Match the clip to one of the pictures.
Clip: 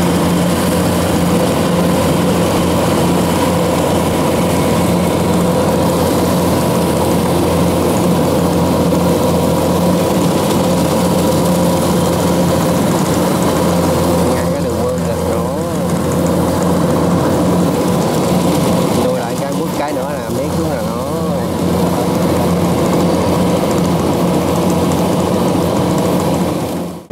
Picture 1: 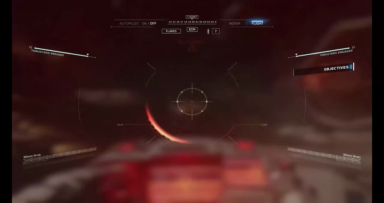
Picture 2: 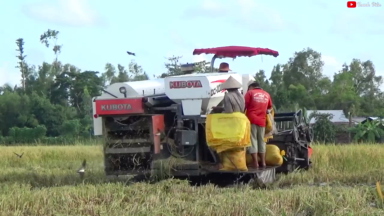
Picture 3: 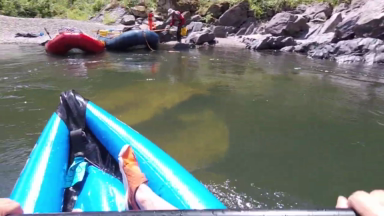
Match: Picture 2